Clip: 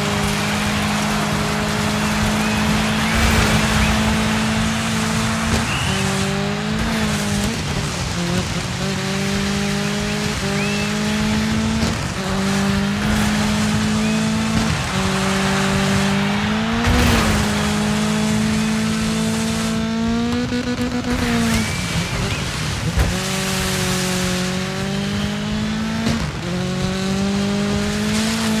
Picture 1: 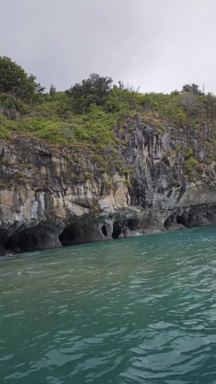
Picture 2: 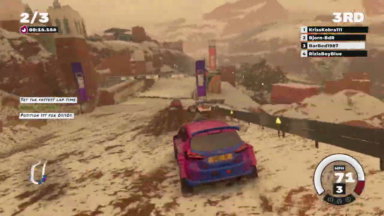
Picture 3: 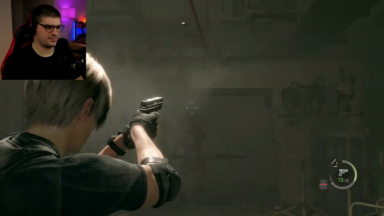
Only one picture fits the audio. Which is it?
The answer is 2